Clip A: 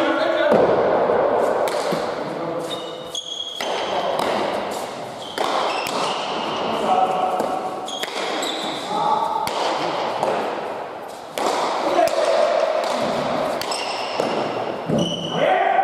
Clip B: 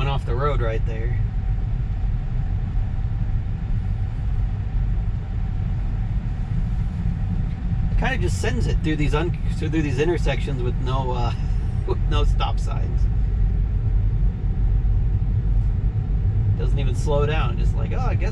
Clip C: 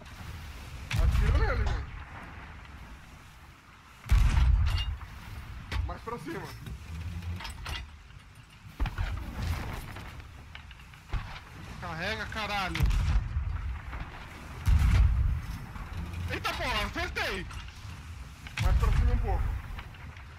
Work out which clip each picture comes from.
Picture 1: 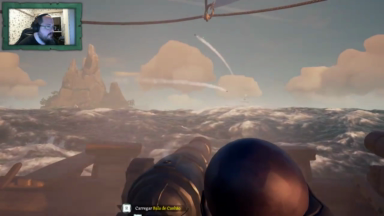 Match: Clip C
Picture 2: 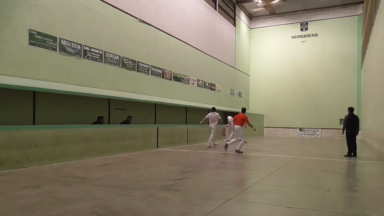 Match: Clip A